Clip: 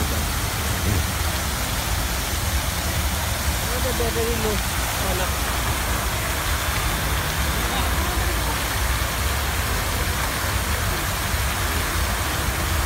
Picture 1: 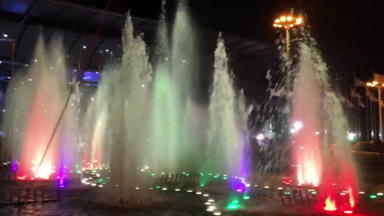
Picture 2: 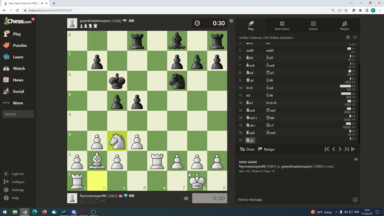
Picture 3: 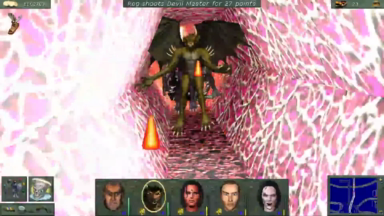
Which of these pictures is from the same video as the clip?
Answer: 1